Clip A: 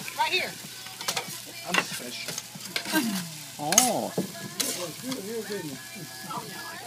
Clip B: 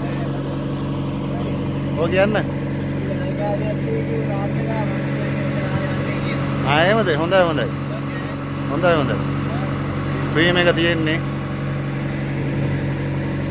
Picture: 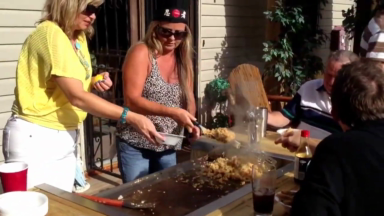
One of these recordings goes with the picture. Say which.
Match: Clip A